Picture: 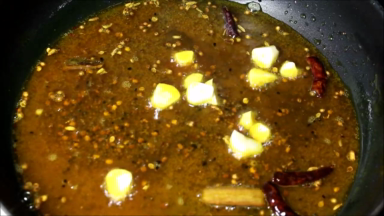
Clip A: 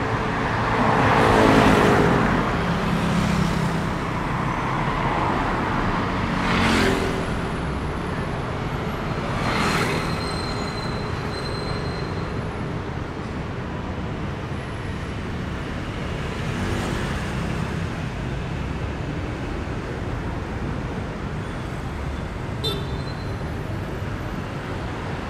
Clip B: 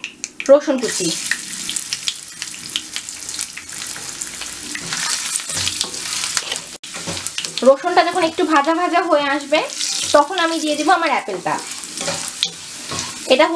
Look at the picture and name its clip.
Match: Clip B